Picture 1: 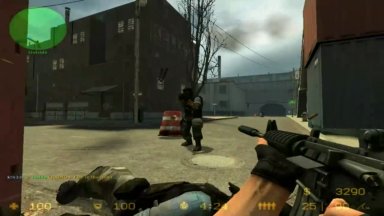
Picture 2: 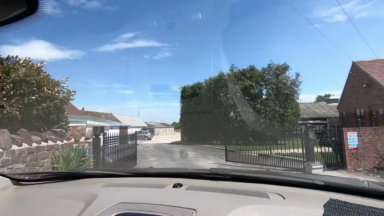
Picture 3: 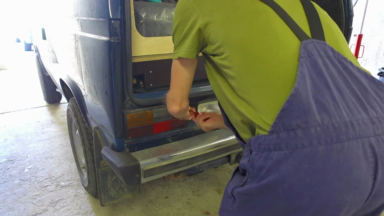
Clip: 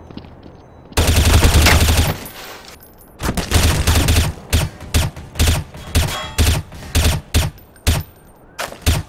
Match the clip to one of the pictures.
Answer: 1